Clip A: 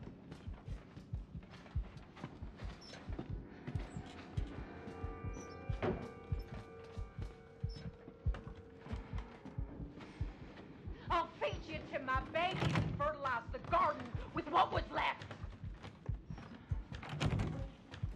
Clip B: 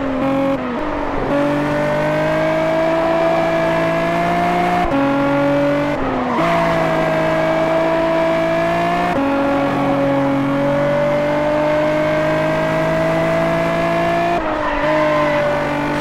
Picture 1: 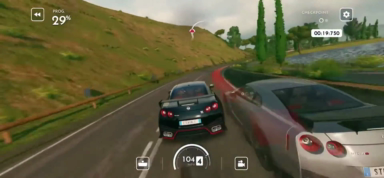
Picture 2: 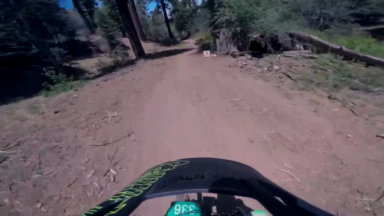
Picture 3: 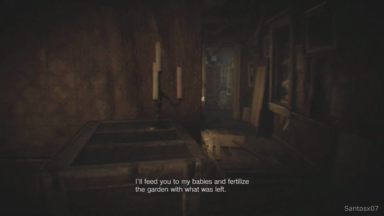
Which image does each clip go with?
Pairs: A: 3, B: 1